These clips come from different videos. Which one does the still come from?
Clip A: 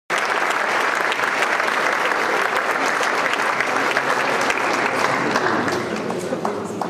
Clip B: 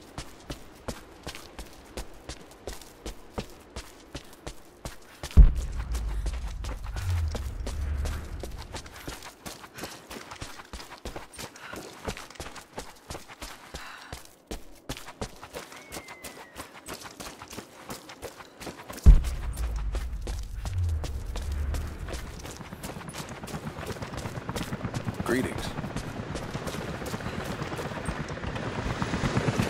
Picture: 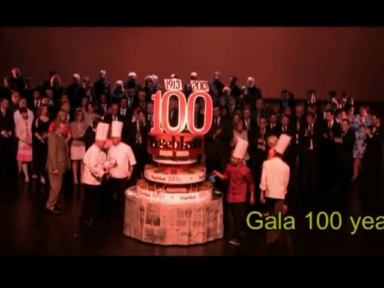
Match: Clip A